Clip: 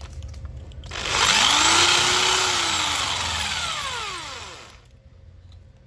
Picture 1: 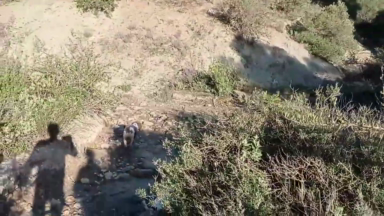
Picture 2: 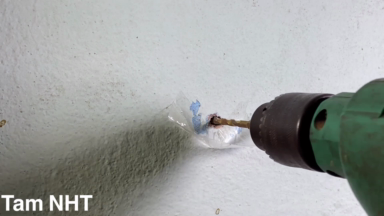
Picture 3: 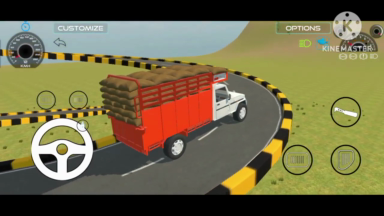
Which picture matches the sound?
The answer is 2